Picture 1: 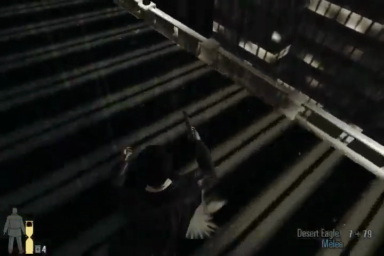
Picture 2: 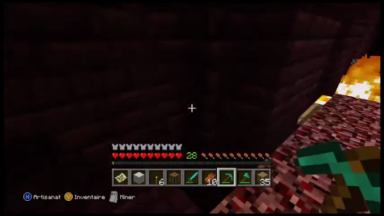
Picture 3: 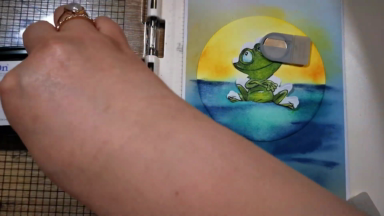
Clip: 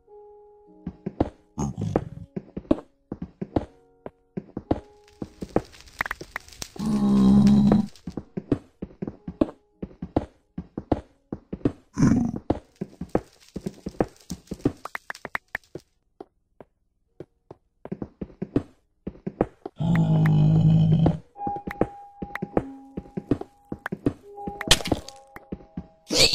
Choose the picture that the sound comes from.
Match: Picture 2